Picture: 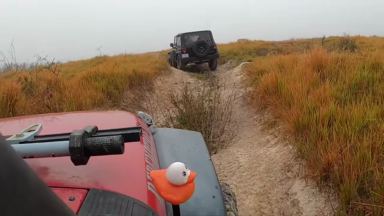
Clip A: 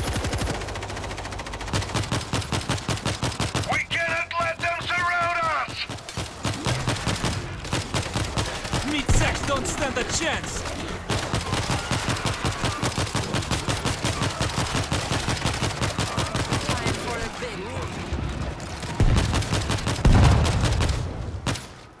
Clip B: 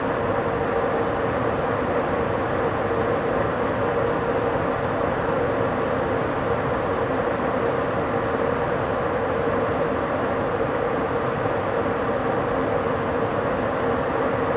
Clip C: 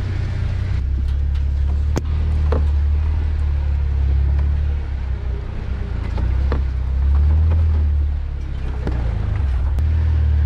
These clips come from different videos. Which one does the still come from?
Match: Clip C